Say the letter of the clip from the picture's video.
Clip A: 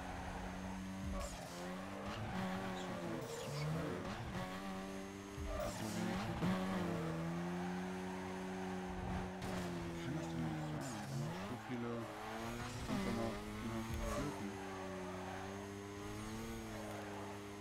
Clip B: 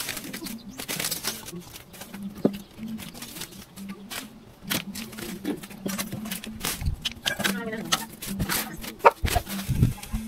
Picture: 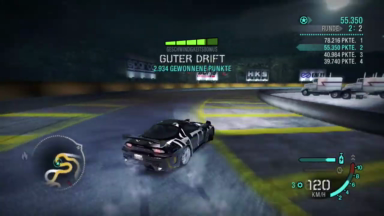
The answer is A